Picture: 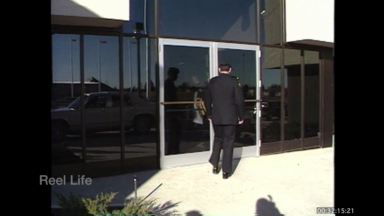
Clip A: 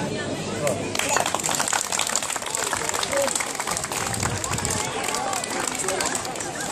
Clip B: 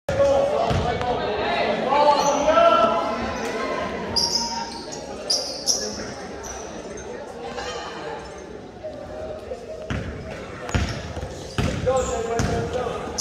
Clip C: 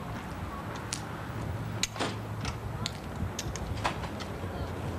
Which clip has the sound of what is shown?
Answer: C